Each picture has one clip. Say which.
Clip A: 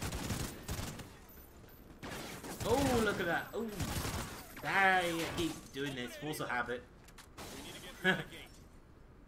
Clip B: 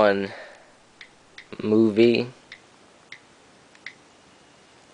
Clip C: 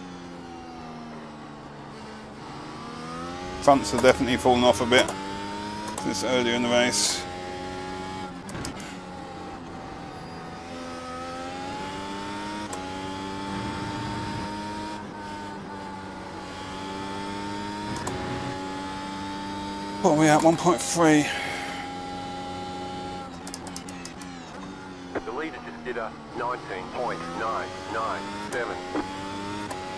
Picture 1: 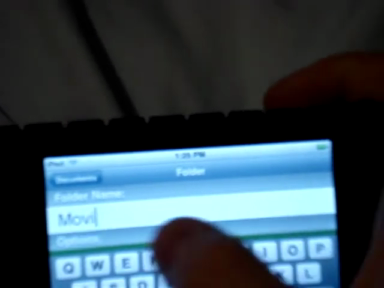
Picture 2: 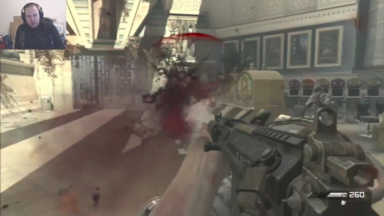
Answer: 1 B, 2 A